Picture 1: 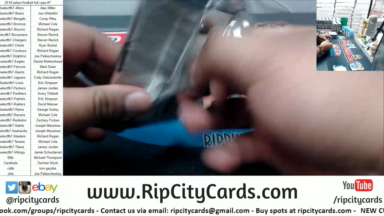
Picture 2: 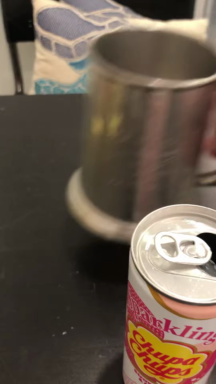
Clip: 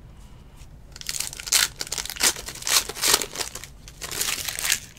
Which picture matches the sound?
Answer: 1